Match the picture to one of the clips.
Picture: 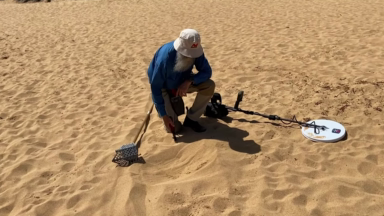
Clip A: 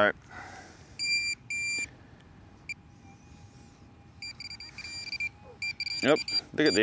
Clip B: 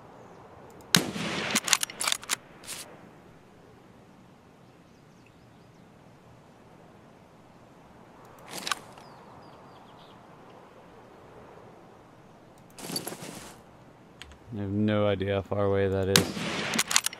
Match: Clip A